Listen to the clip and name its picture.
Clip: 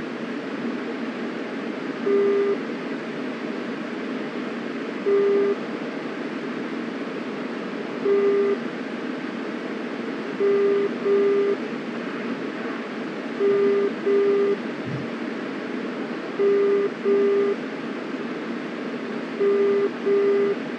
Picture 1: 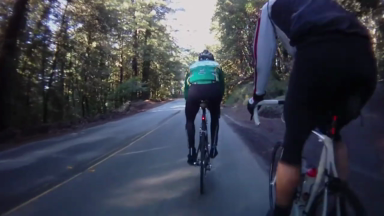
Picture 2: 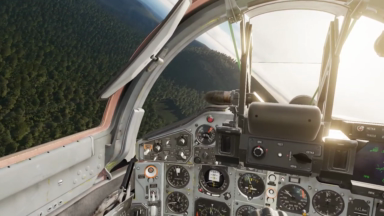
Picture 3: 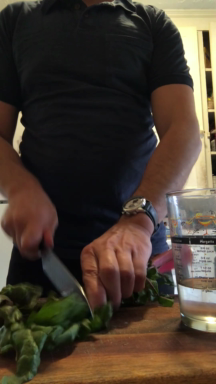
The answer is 2